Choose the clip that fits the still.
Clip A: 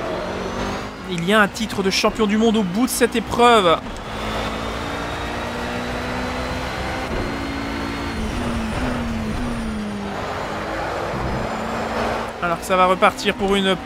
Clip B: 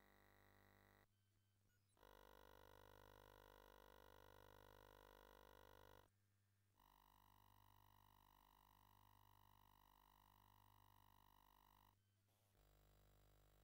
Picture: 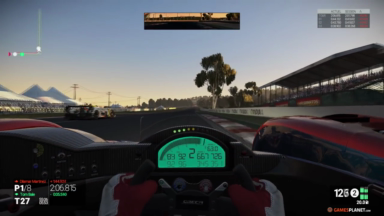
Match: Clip A